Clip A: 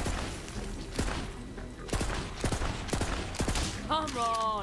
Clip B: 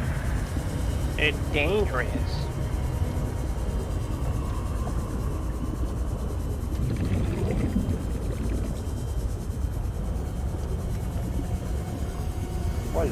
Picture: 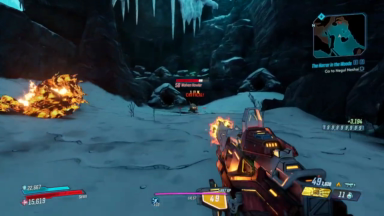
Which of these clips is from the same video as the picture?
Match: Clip A